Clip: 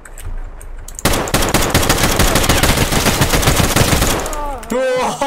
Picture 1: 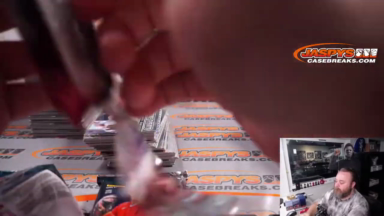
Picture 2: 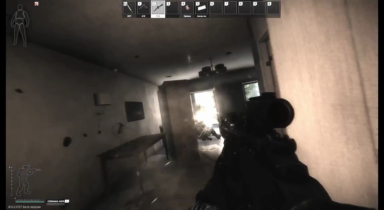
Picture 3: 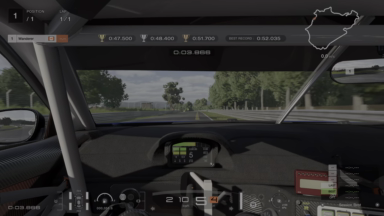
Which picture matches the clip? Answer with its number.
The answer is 2